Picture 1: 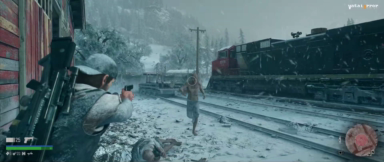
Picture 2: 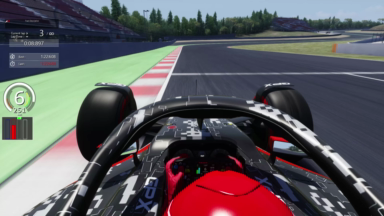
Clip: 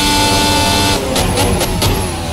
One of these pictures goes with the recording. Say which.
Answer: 2